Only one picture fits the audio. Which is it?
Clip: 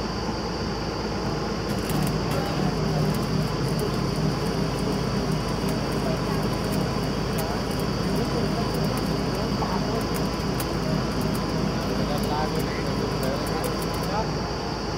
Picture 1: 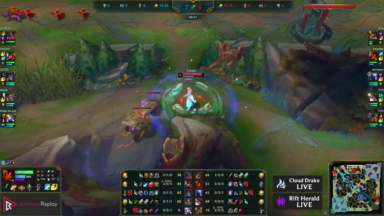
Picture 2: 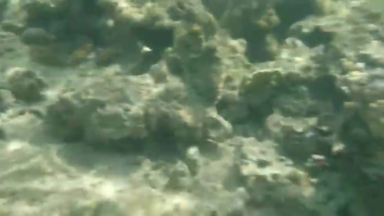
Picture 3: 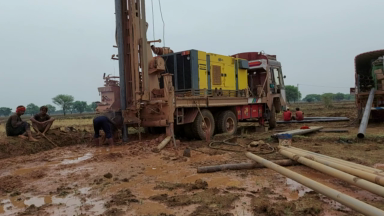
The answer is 3